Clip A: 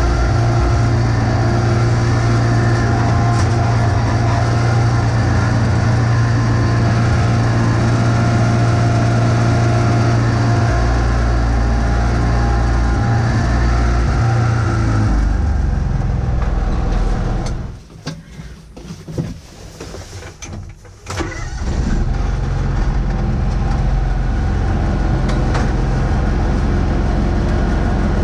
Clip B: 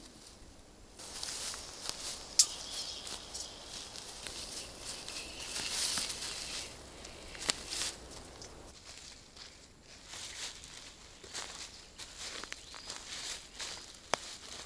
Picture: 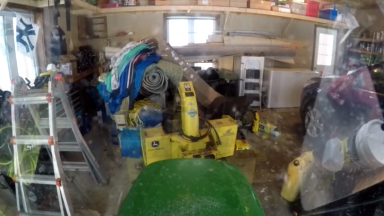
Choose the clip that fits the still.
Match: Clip A